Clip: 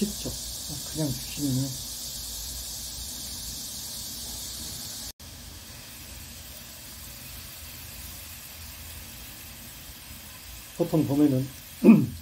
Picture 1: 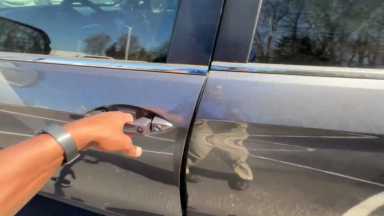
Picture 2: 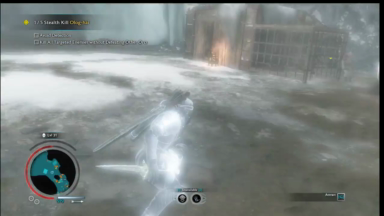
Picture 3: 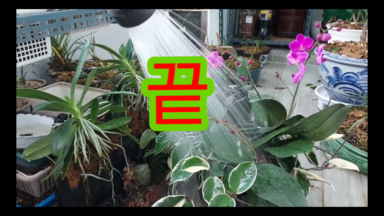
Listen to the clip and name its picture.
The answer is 3